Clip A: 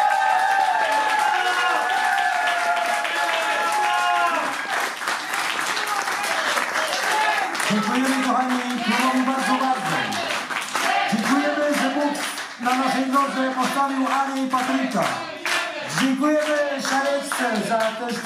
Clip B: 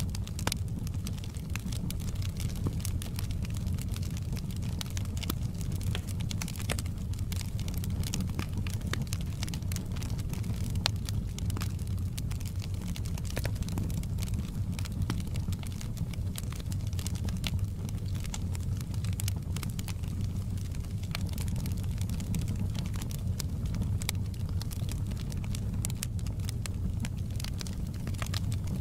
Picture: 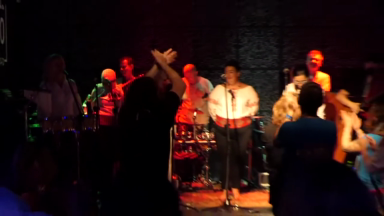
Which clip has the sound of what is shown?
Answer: A